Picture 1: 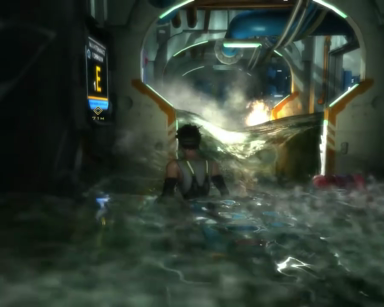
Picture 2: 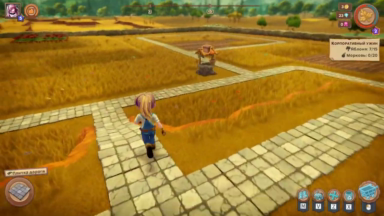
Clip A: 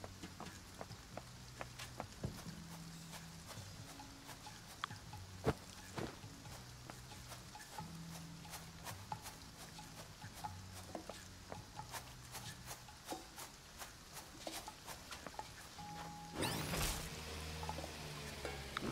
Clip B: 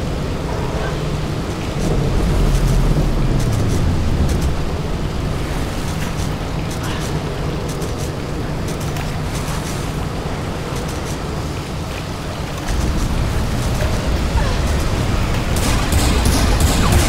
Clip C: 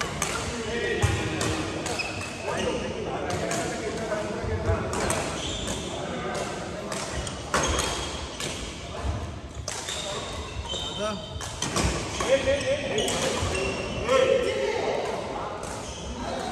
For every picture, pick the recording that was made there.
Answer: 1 B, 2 A